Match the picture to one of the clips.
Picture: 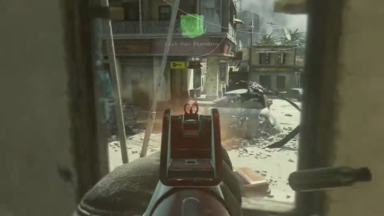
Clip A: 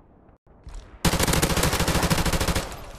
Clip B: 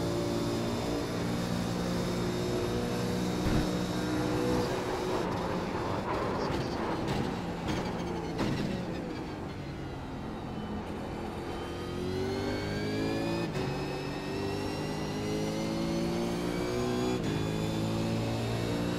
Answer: A